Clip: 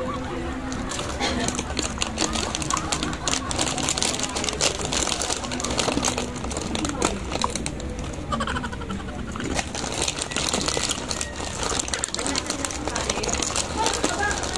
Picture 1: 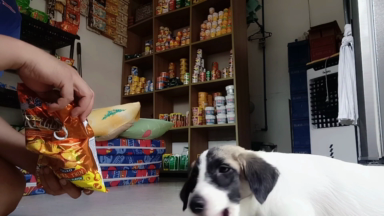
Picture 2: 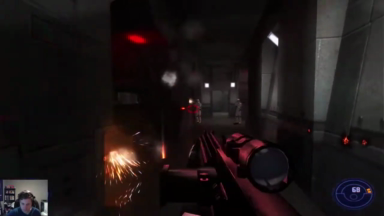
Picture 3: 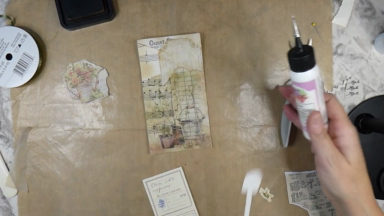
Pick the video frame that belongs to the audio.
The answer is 1